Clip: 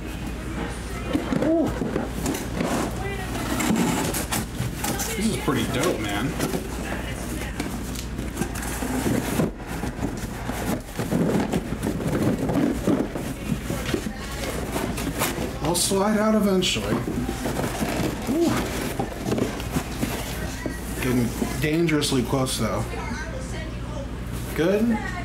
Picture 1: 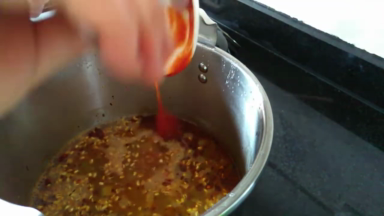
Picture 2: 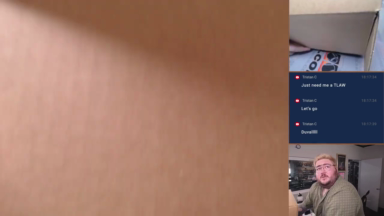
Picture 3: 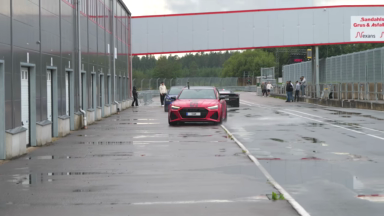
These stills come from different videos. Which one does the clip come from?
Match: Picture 2